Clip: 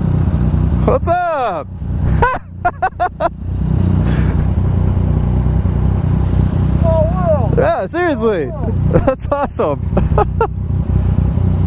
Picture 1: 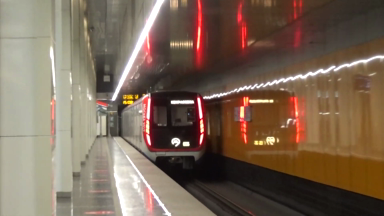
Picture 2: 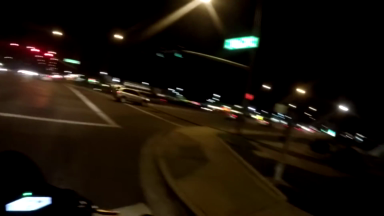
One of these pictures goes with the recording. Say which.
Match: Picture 2